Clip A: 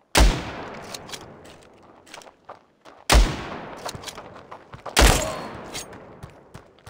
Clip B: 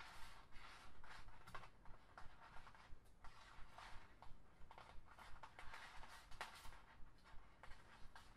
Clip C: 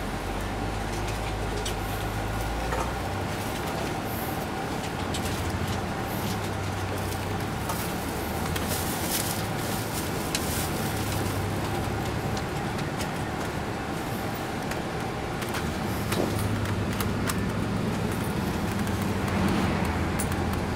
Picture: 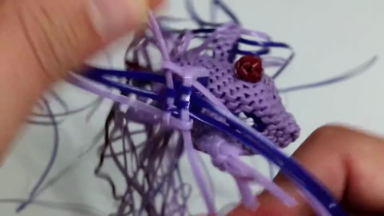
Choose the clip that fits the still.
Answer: B